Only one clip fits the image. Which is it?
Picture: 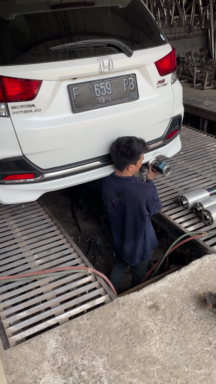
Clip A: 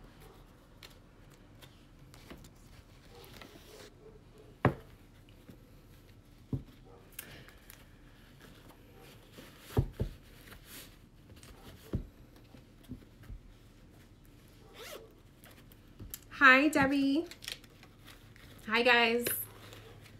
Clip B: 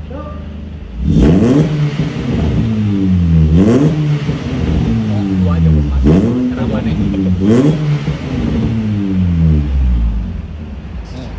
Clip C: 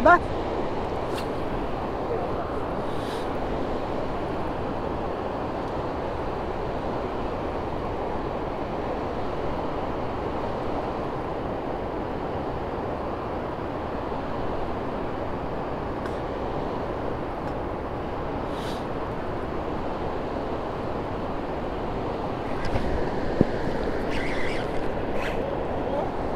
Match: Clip B